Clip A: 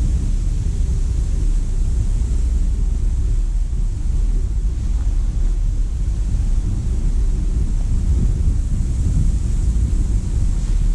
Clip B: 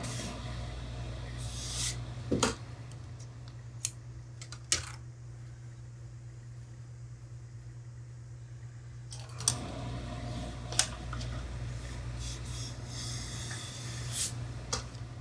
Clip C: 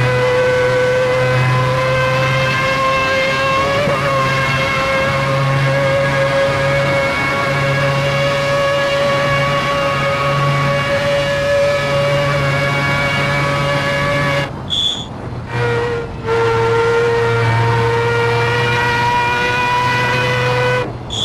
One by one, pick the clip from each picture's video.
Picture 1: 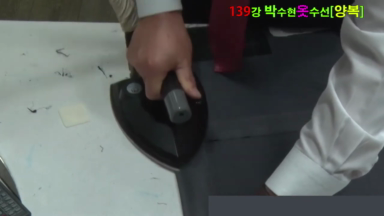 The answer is B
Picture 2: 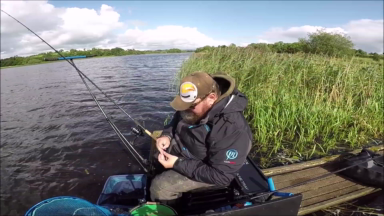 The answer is A